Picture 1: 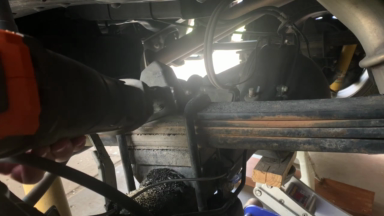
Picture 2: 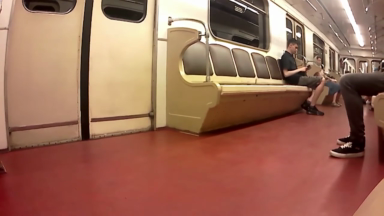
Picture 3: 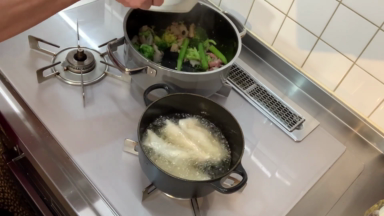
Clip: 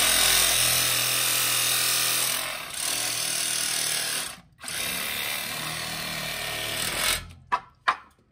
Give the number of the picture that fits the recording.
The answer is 1